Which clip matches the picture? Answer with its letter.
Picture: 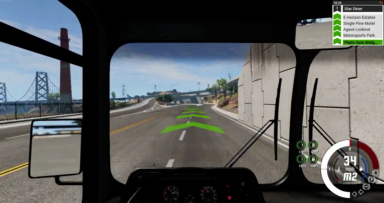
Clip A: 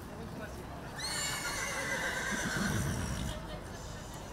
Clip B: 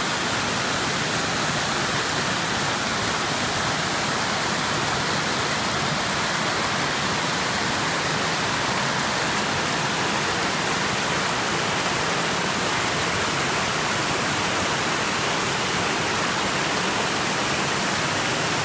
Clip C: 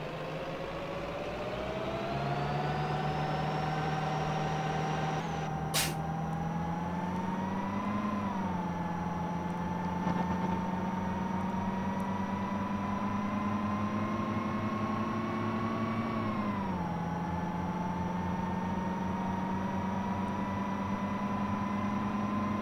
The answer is C